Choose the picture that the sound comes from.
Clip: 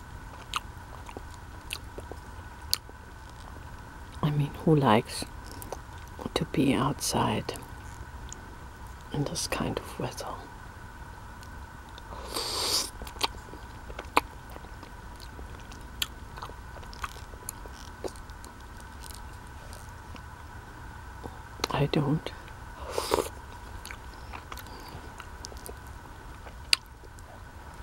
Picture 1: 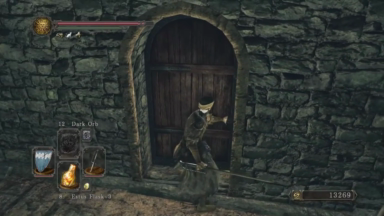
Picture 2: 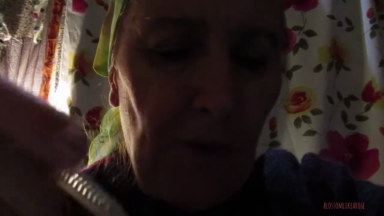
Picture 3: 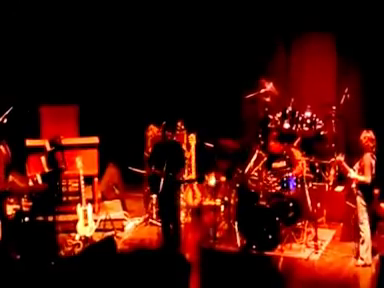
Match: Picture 2